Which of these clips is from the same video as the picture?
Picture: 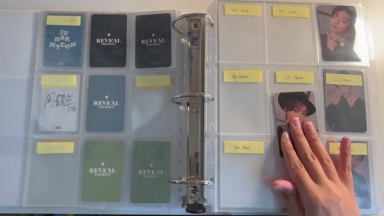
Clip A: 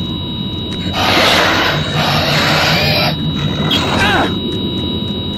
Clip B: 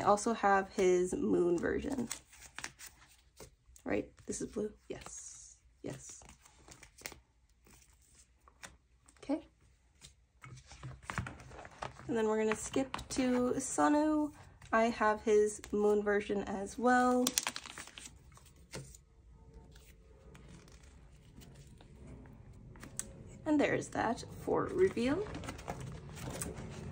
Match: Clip B